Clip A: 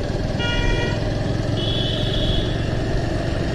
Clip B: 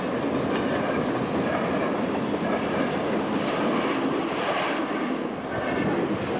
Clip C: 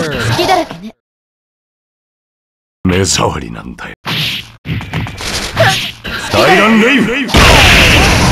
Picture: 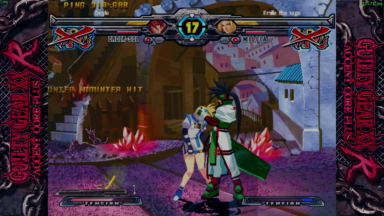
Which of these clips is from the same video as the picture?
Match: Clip C